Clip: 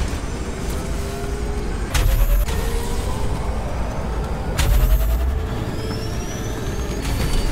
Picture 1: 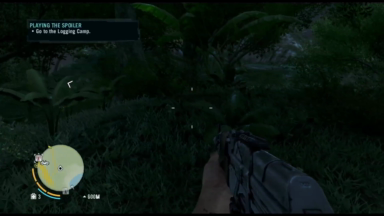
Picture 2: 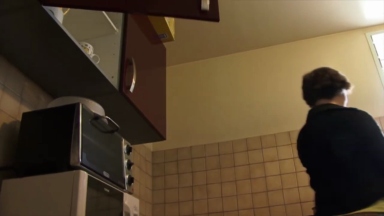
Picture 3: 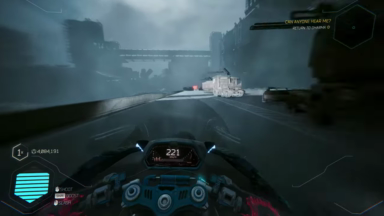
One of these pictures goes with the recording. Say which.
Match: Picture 3